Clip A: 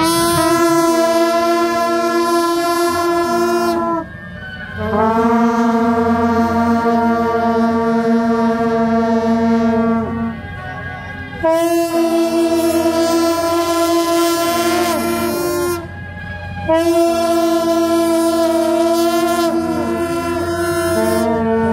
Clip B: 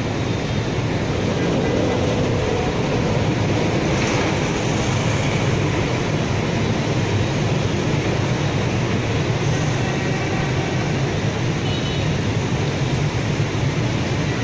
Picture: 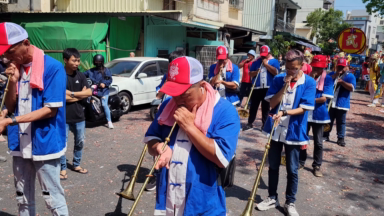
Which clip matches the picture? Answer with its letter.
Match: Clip A